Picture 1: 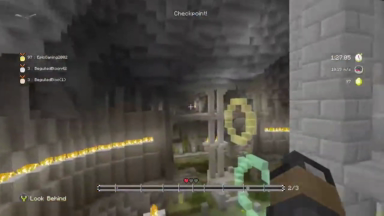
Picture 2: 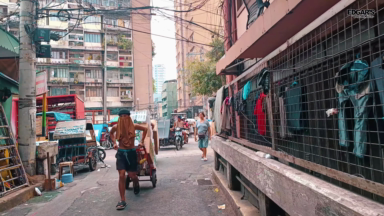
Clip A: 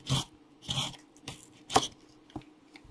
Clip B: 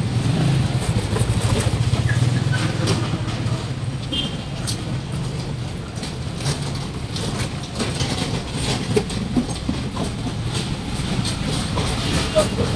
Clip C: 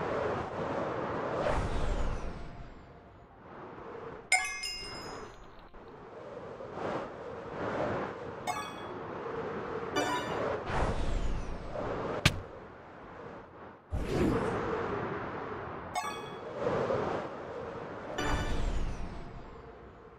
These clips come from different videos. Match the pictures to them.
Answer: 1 C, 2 B